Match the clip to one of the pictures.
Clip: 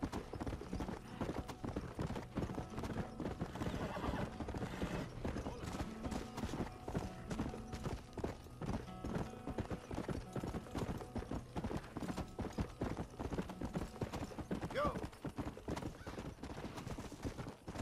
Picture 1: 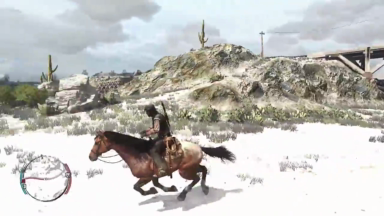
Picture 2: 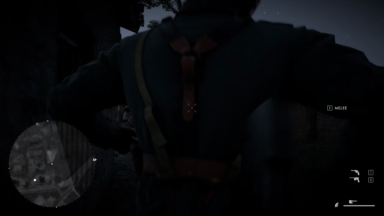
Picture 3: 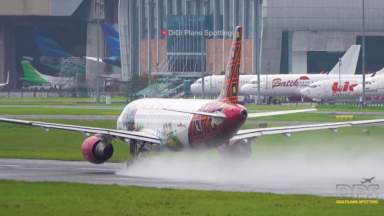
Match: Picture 1